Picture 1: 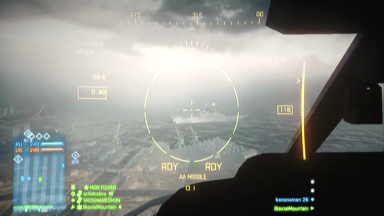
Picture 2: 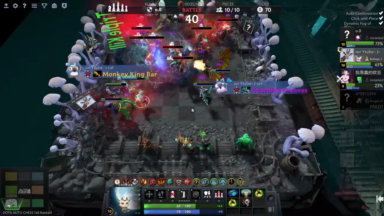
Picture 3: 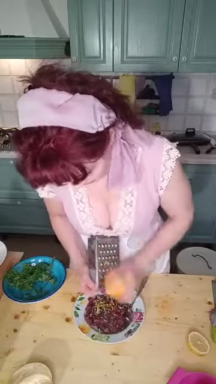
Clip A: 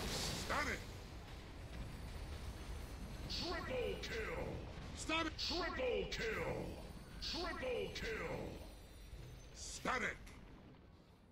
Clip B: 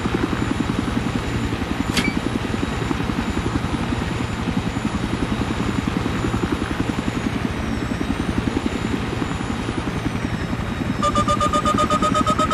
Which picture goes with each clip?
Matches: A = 2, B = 1